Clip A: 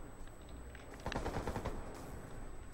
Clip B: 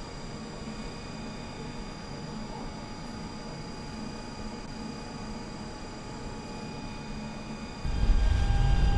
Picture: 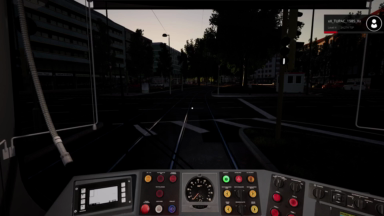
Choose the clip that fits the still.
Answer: B